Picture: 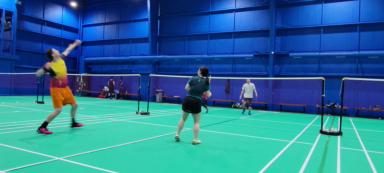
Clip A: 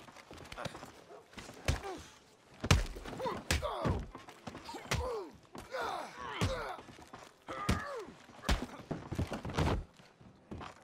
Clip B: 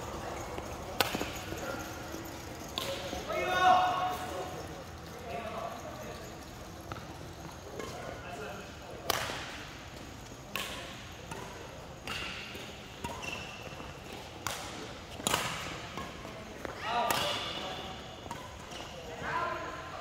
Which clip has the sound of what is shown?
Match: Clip B